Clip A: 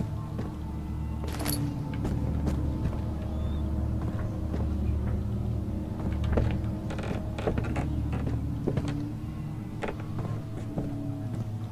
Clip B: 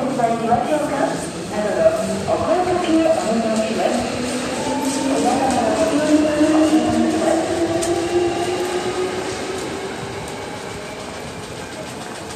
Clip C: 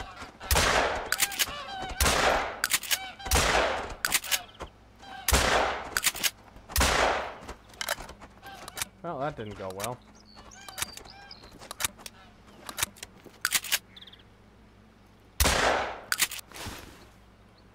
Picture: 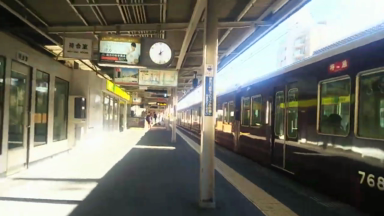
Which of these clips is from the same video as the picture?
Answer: B